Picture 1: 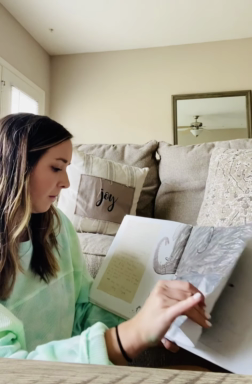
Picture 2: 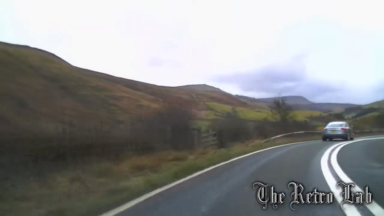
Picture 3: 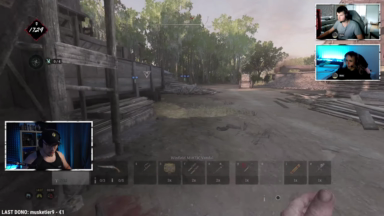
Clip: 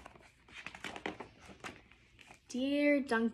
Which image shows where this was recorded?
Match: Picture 1